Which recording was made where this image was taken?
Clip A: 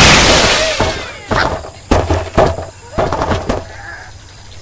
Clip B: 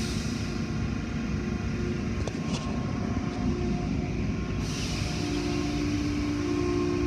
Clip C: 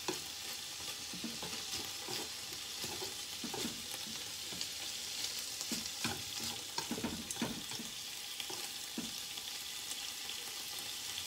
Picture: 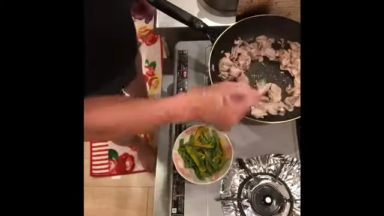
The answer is C